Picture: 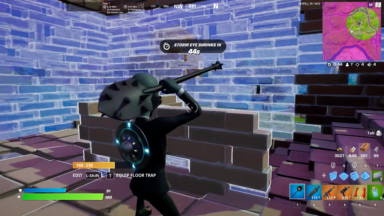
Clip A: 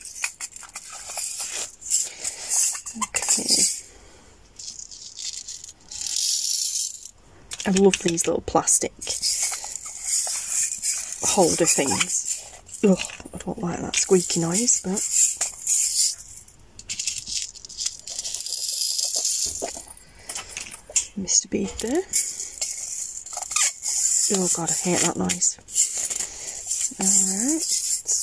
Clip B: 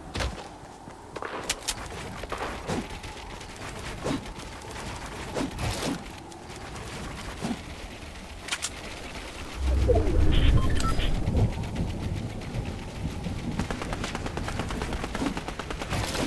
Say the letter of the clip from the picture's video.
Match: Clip B